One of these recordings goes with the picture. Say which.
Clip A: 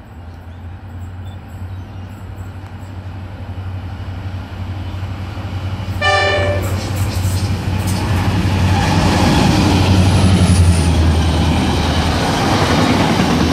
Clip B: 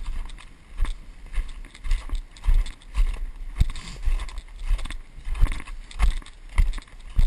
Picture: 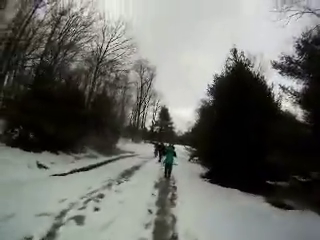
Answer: B